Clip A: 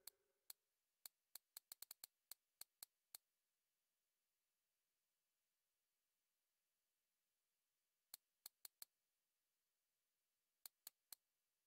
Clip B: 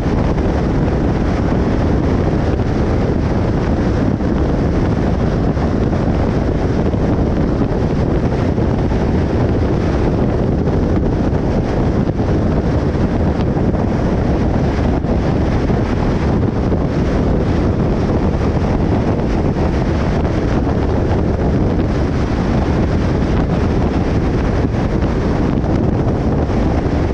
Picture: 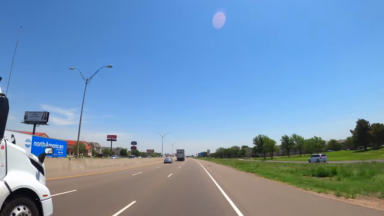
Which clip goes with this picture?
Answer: B